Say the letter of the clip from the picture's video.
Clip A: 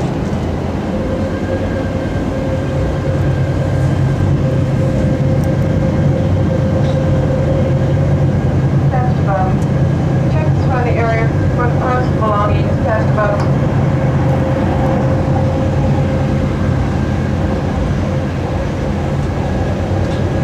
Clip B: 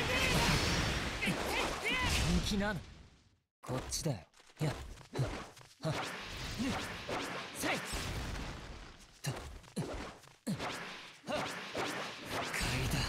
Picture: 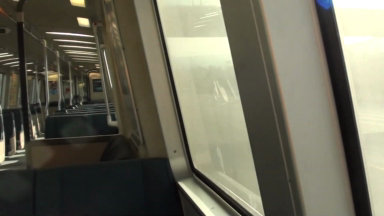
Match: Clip A